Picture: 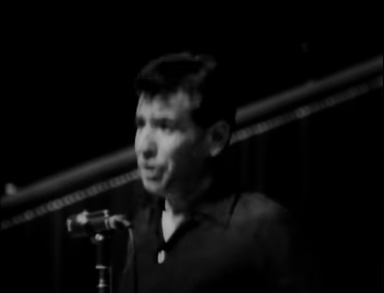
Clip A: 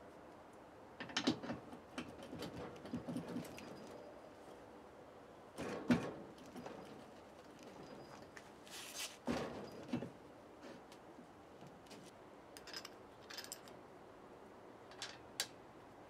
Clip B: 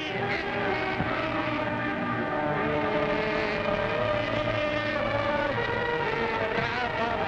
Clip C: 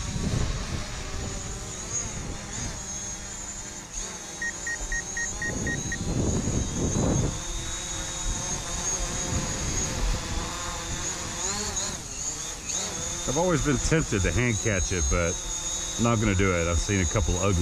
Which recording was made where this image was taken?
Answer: B